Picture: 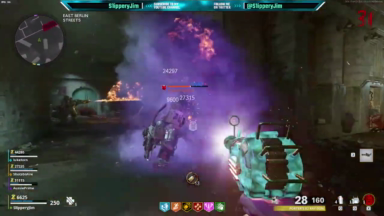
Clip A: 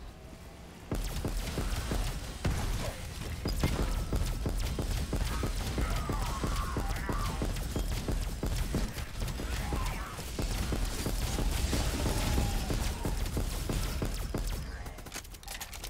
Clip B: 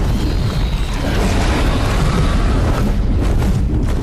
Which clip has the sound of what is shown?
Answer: A